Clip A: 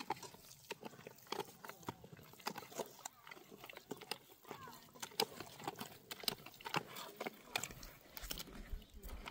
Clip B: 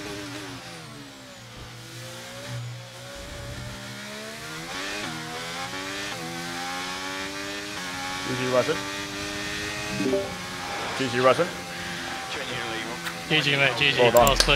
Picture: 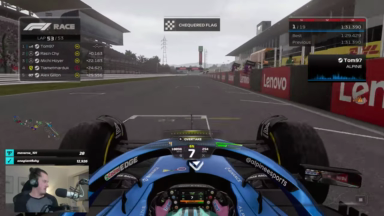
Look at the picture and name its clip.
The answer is B